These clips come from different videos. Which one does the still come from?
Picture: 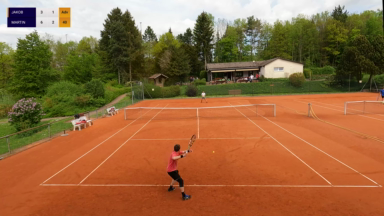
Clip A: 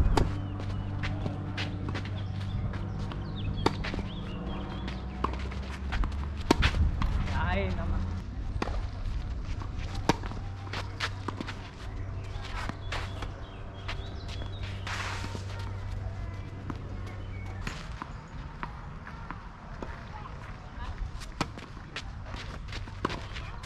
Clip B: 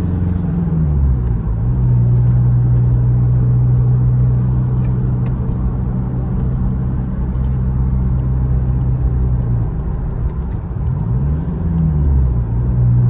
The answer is A